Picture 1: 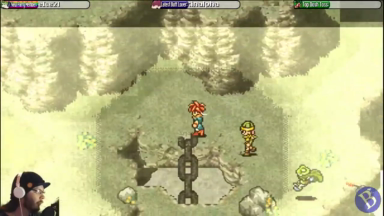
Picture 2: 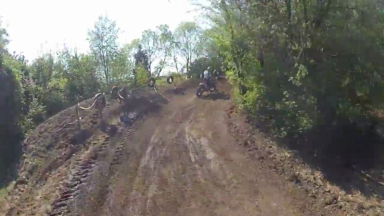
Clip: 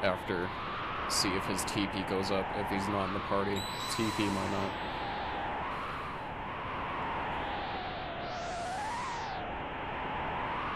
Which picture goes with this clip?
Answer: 1